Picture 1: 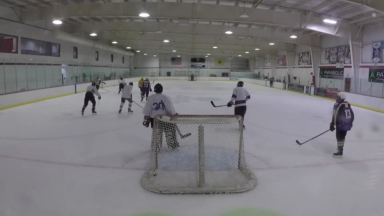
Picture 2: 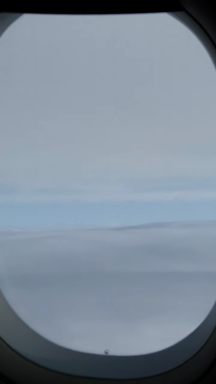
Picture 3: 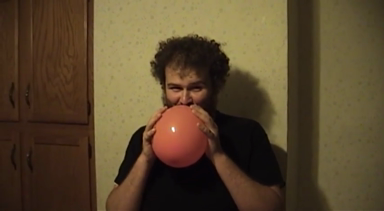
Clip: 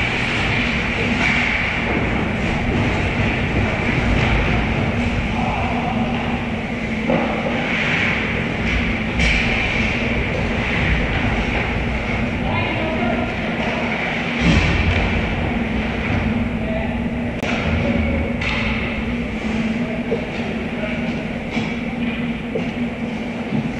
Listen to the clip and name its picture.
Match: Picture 1